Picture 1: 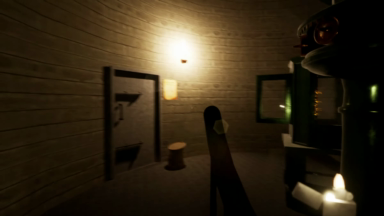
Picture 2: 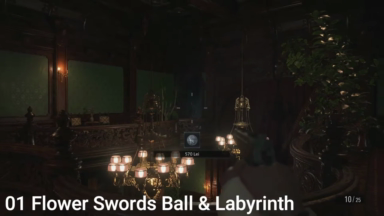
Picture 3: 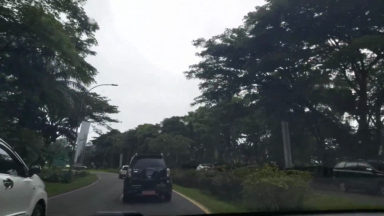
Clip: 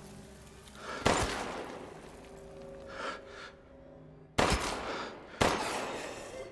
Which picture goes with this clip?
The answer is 2